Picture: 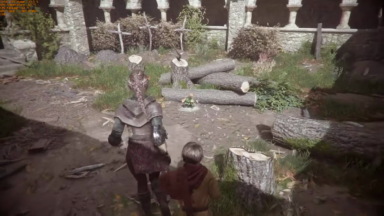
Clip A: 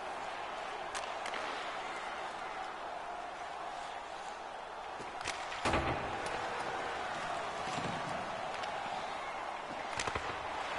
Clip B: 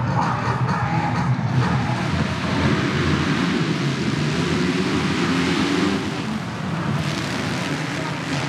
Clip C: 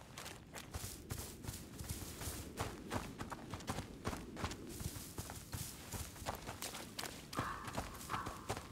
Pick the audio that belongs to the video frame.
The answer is C